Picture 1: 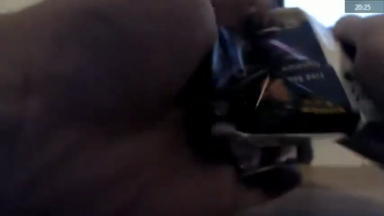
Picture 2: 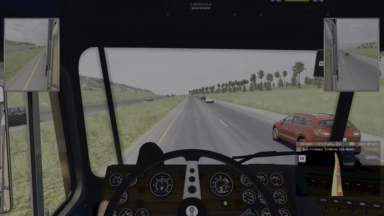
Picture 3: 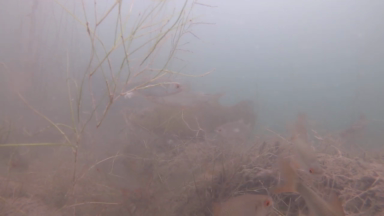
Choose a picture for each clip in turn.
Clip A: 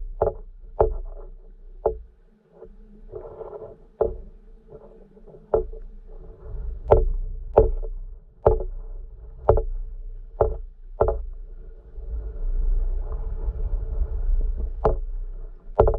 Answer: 3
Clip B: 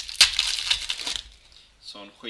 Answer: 1